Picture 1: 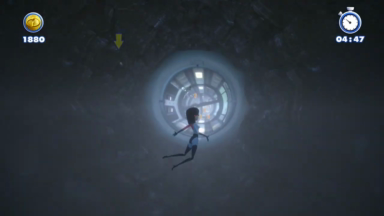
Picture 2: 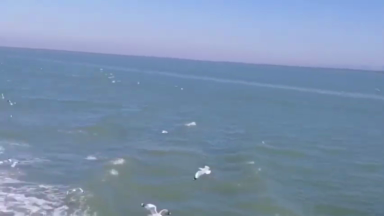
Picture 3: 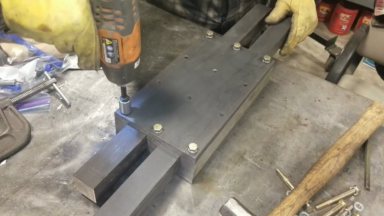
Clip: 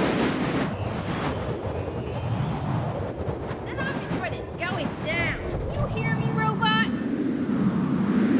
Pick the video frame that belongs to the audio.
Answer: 1